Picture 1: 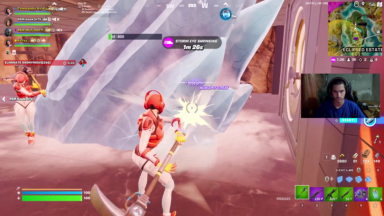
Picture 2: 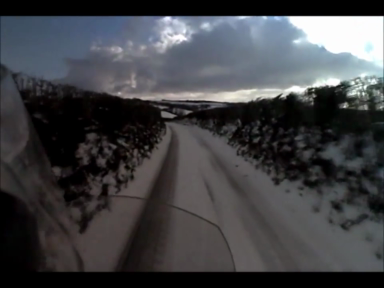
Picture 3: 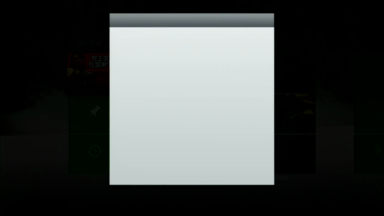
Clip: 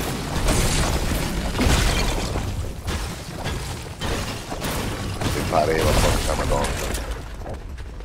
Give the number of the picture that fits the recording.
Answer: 1